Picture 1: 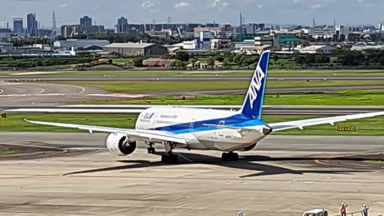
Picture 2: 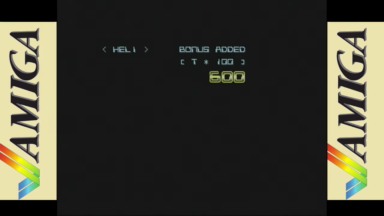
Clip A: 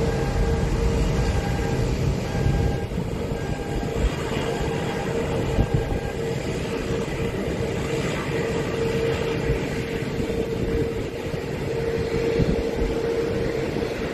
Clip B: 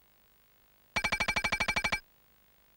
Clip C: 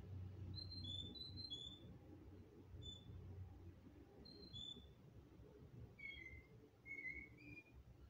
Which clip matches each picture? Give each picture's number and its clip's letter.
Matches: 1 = A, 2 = B